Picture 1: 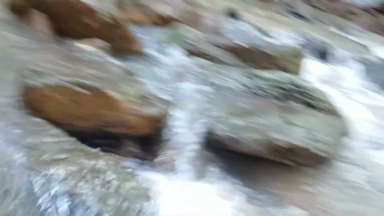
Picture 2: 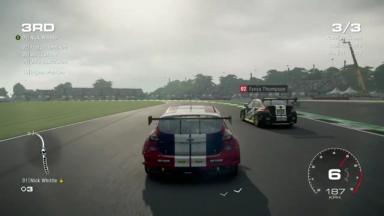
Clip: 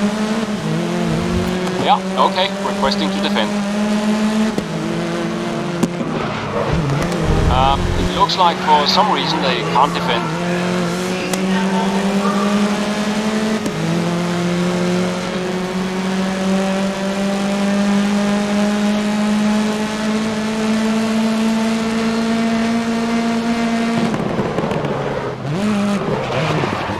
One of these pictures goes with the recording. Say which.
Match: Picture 2